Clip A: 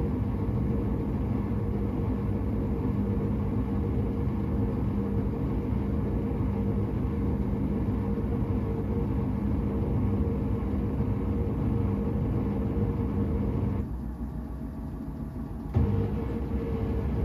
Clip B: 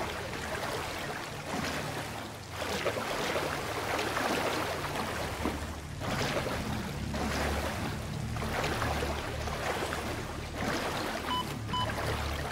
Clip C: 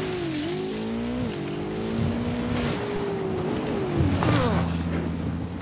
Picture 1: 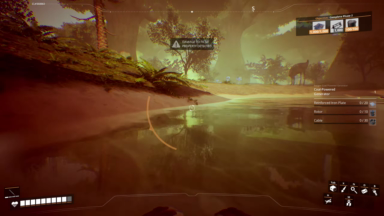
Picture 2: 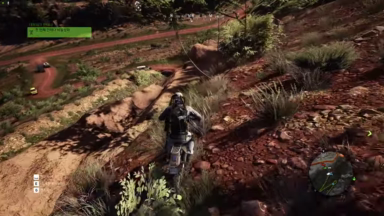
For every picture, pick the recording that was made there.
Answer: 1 B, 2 C